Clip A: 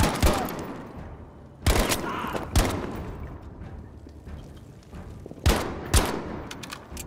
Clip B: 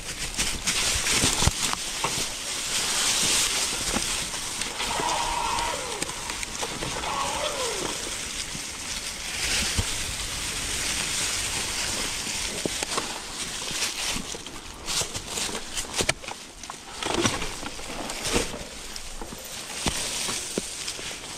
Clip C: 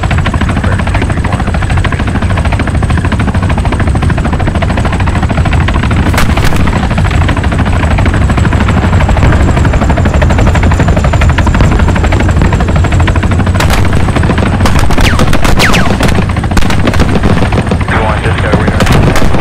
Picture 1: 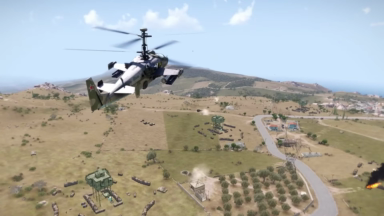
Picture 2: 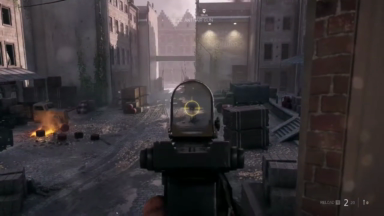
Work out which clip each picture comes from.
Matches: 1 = C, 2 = A